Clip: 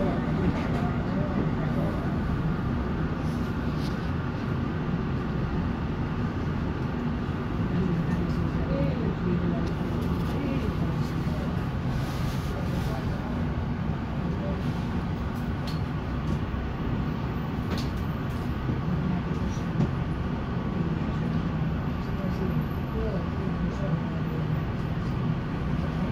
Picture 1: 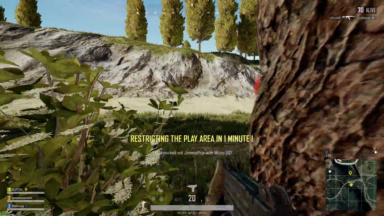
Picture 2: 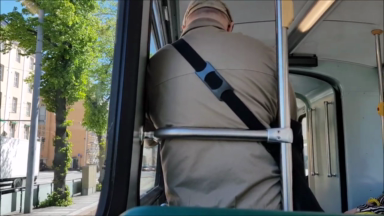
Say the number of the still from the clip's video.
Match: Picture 2